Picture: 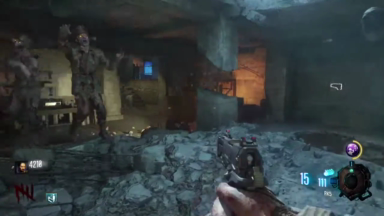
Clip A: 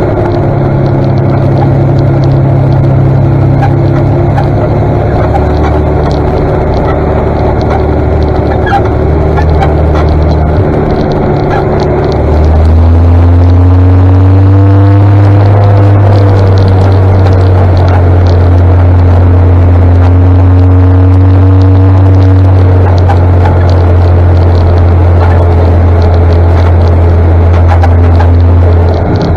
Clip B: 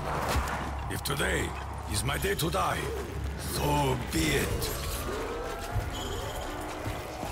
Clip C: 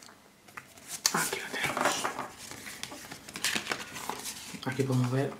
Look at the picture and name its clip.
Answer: B